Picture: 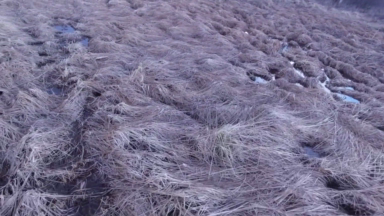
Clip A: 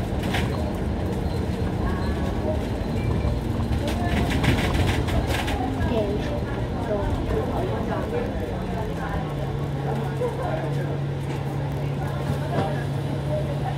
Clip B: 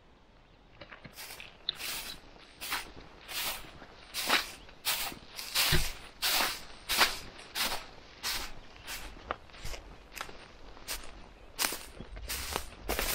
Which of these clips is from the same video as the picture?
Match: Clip B